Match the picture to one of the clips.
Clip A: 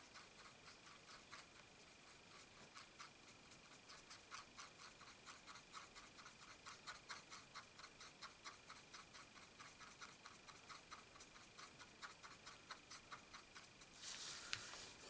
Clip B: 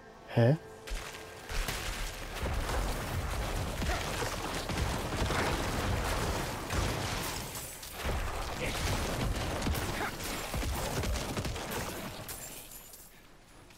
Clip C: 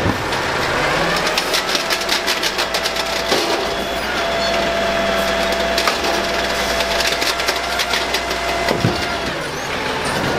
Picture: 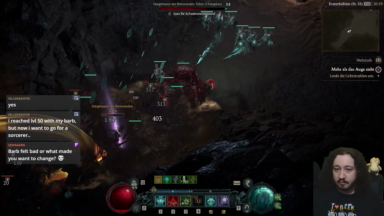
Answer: B